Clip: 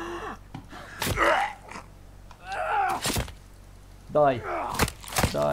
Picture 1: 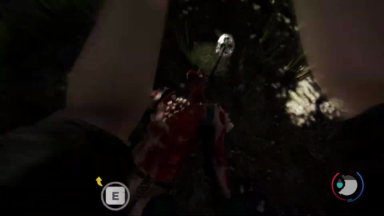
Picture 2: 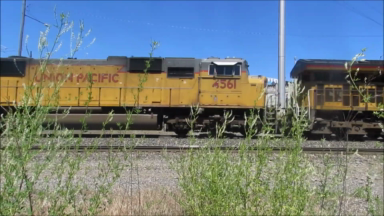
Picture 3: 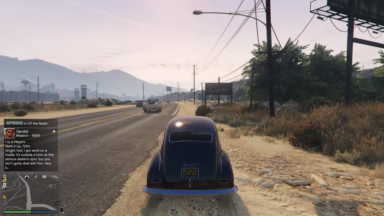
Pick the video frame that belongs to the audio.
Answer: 1